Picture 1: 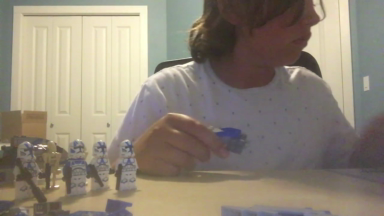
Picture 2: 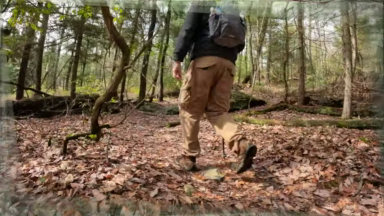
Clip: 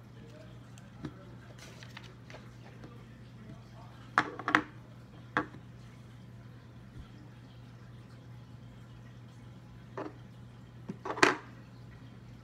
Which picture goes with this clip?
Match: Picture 1